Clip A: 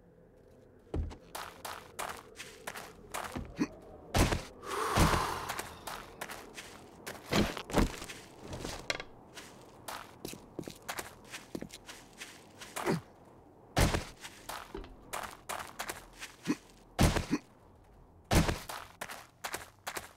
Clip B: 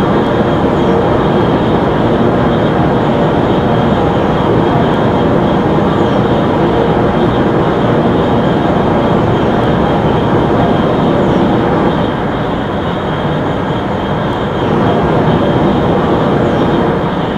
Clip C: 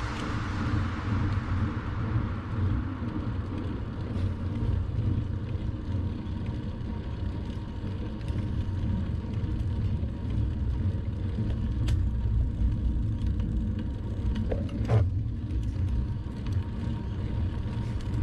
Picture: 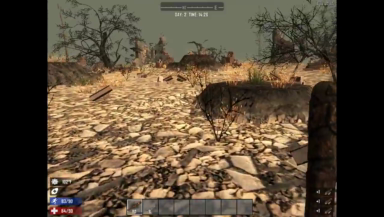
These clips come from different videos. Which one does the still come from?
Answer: A